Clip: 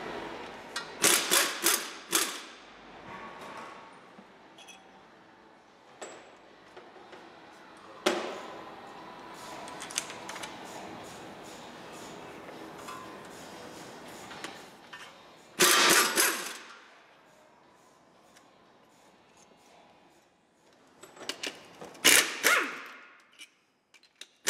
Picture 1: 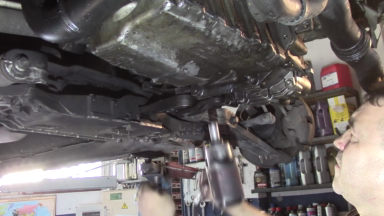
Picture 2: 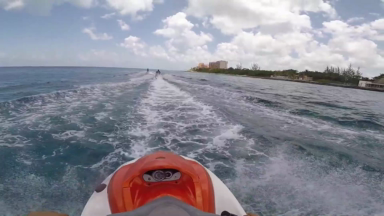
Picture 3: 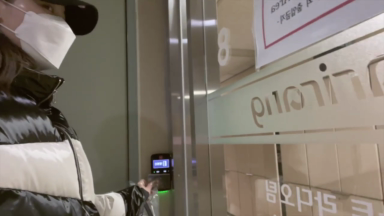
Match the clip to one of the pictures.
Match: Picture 1